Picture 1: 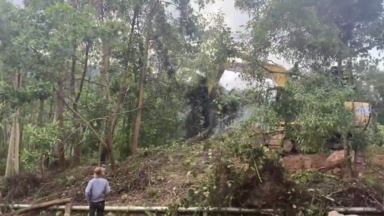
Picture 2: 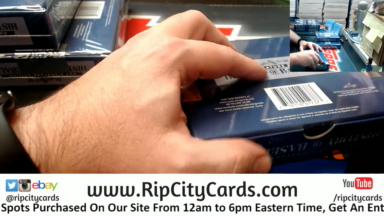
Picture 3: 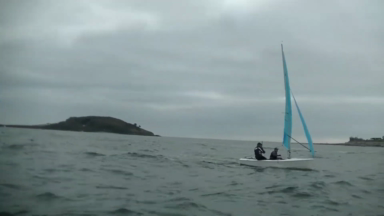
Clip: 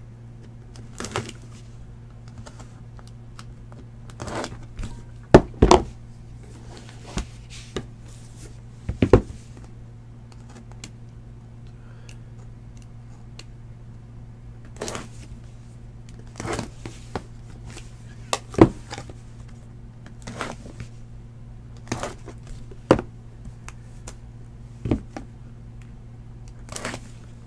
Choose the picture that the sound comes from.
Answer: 2